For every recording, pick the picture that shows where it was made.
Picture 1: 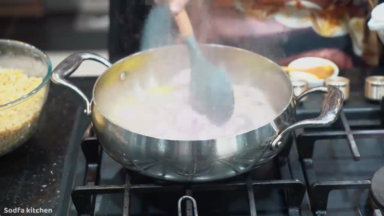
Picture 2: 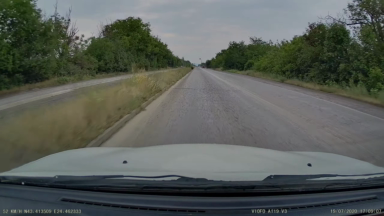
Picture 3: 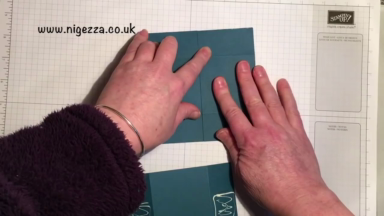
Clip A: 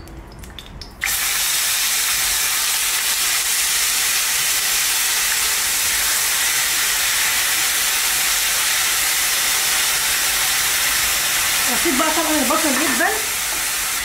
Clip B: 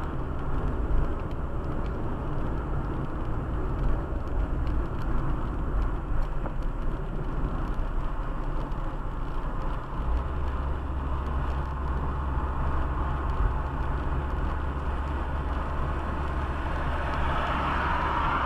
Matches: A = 1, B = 2